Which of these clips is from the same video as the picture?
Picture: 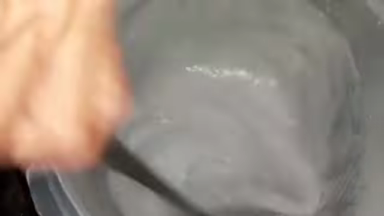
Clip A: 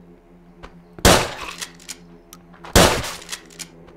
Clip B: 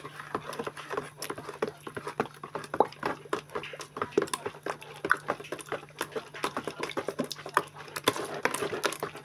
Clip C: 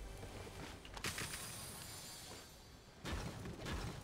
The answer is B